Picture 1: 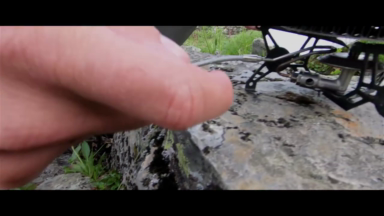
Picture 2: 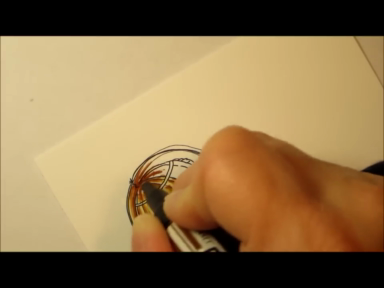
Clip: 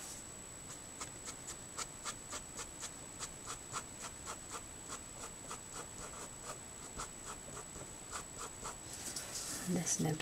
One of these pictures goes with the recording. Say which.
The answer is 2